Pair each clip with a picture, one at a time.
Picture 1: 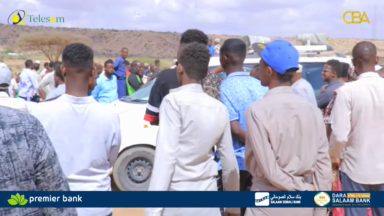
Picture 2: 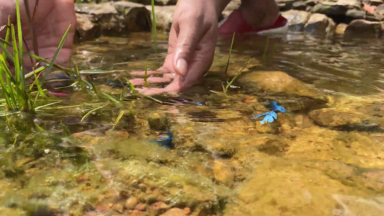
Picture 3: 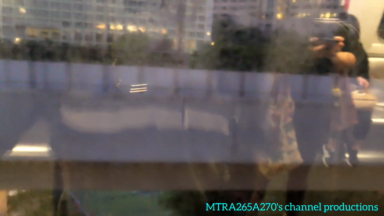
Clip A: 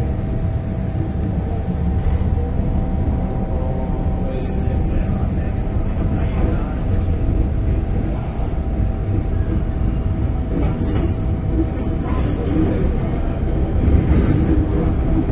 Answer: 3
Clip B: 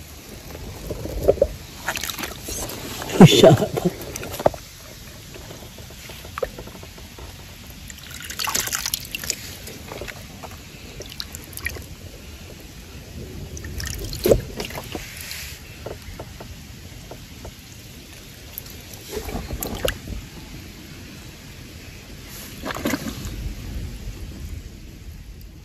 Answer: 2